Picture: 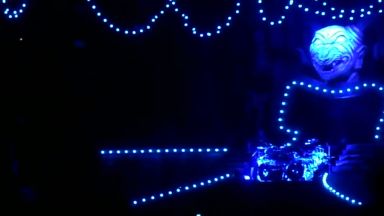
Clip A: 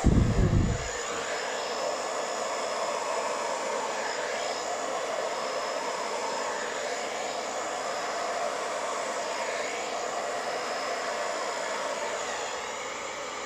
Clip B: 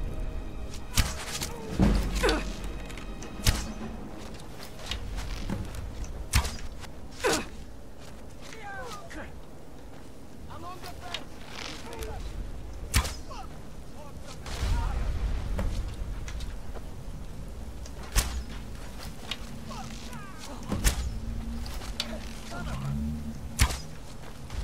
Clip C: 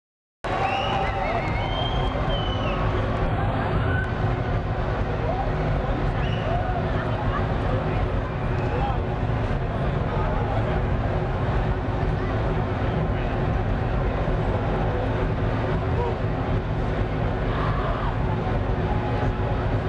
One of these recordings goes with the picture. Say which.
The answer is C